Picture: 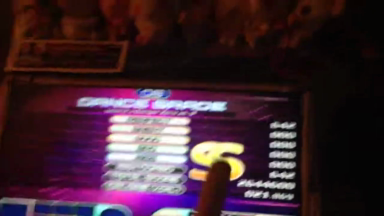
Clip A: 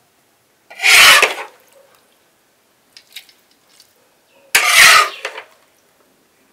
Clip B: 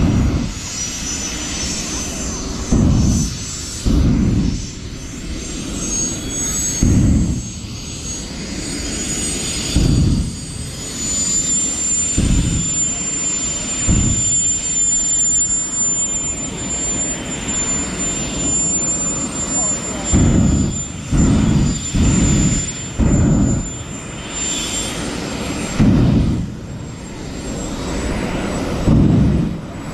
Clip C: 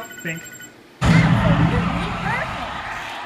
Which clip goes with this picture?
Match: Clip C